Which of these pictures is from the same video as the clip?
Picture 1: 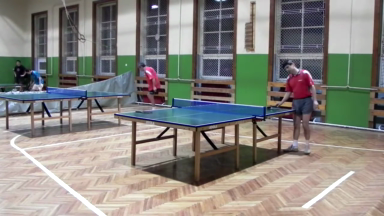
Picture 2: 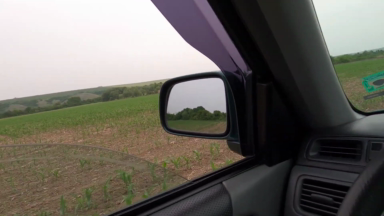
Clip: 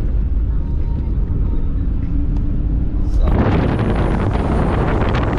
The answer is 2